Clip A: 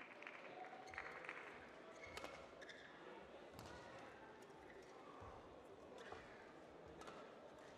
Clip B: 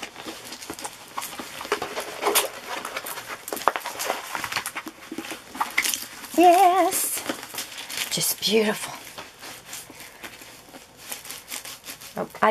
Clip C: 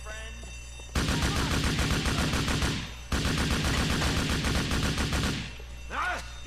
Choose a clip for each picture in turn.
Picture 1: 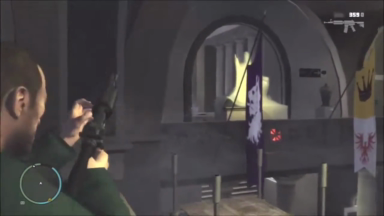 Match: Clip C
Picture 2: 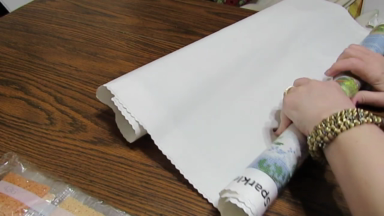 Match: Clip B